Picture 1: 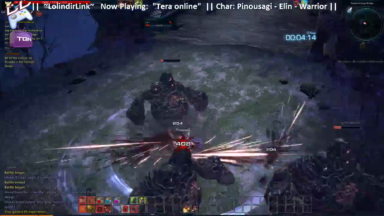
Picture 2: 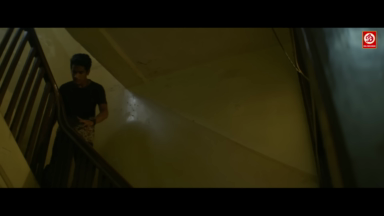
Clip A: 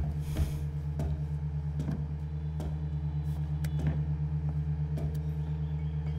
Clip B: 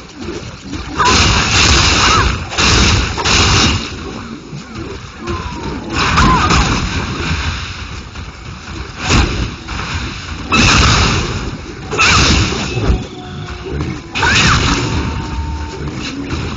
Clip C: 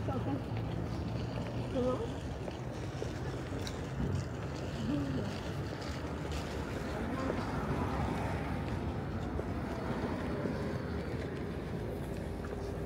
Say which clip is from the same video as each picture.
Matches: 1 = B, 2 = A